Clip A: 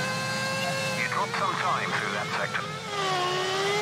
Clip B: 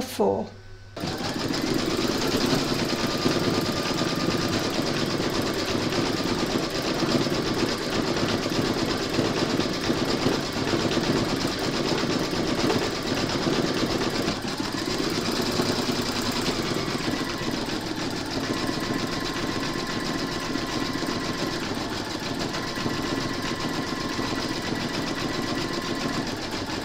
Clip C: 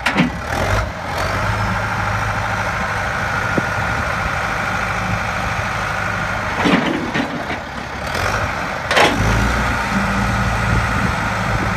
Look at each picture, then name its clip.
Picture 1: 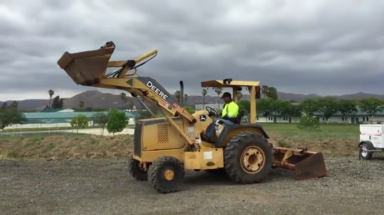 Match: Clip C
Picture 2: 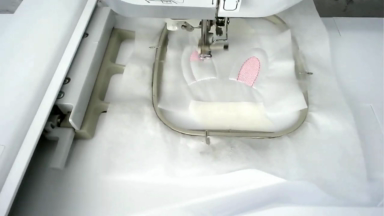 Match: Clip B